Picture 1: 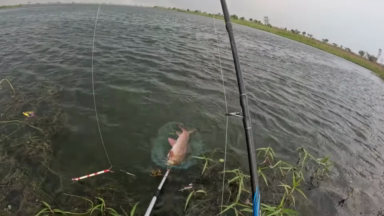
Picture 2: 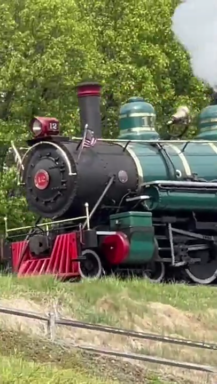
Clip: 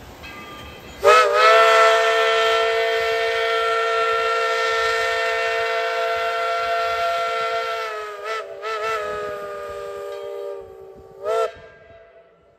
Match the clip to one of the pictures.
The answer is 2